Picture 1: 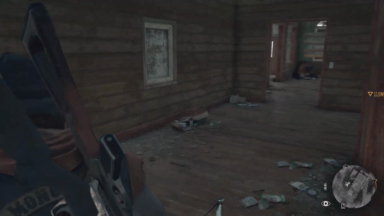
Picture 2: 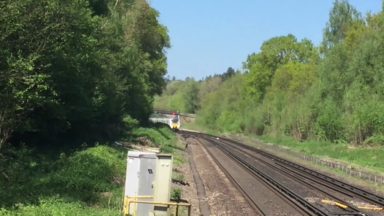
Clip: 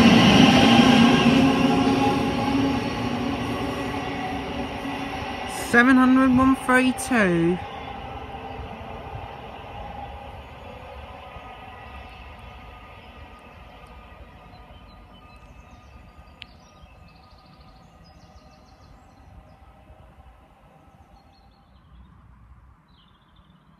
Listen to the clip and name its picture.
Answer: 2